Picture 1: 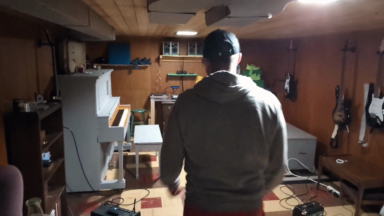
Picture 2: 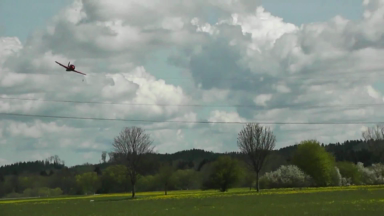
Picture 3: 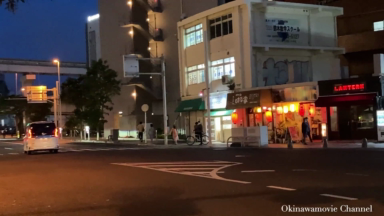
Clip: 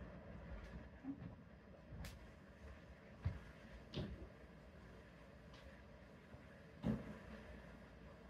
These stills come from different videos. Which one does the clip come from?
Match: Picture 1